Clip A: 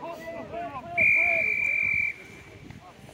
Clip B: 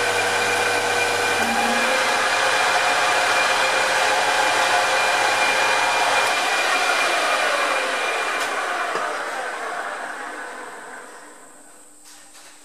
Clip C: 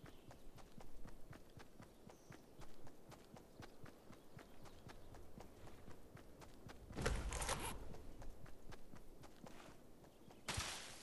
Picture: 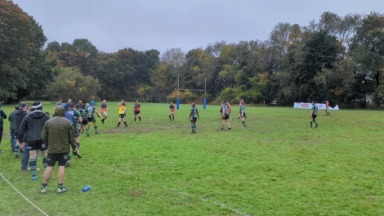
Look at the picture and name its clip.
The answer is A